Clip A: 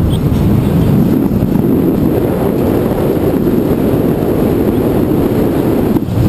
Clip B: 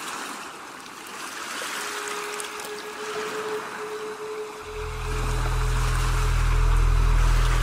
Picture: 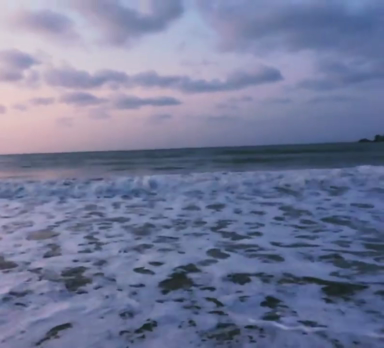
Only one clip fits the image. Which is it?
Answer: B